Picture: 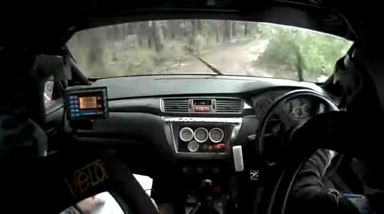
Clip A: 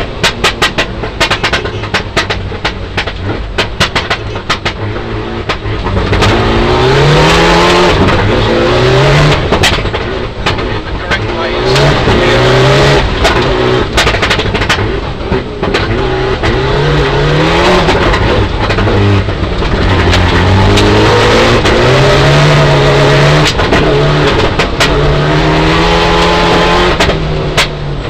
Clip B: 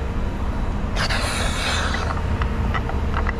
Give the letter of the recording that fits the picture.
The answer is A